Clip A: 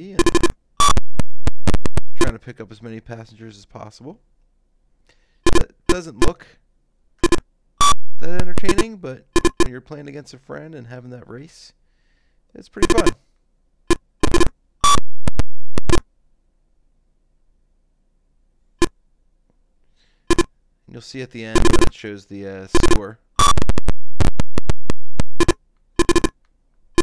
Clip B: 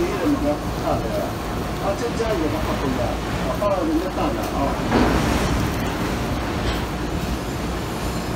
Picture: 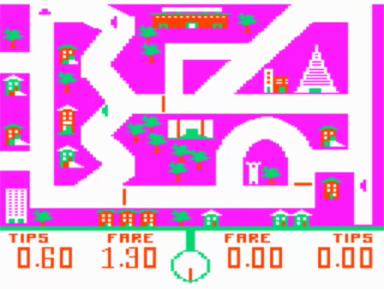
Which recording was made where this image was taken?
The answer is A